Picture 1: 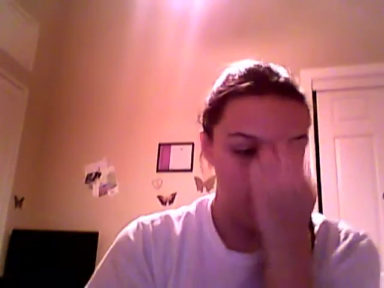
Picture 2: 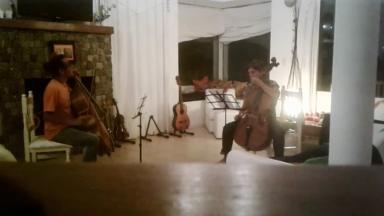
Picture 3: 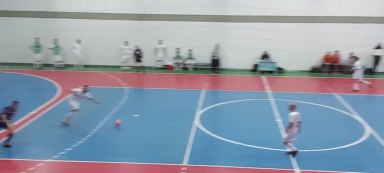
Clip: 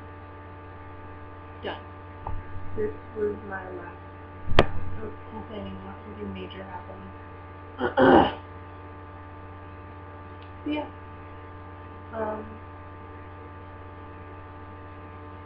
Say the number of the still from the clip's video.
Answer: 1